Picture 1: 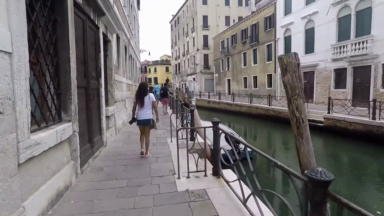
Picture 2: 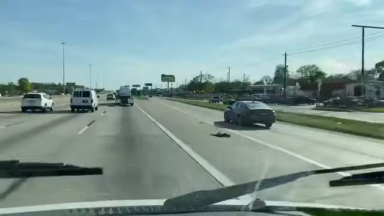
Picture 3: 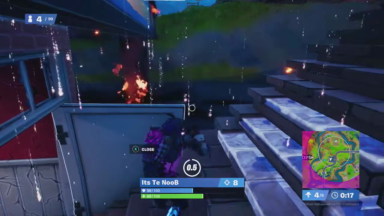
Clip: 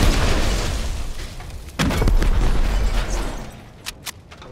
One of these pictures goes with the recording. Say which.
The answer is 3